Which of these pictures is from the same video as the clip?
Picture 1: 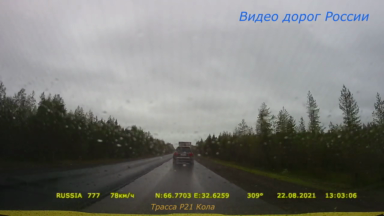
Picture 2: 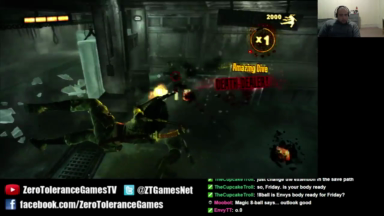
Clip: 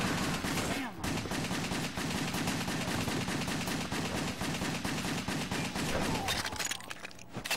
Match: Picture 2